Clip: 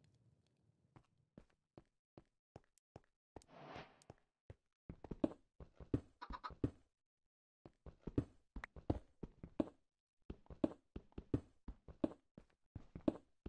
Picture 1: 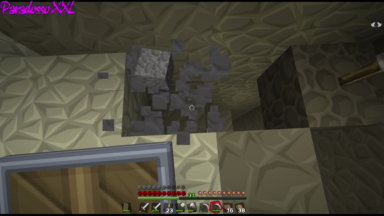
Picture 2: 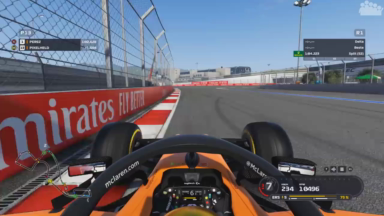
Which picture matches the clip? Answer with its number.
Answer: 1